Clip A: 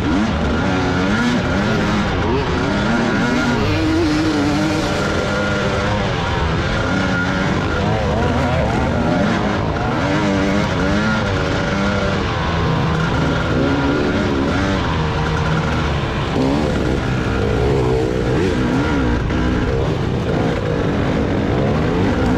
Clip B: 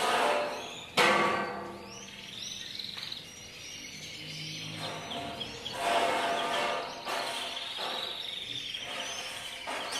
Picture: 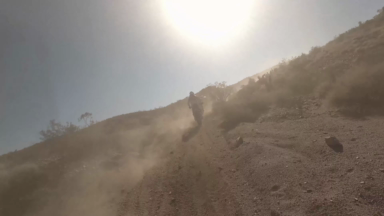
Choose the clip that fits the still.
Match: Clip A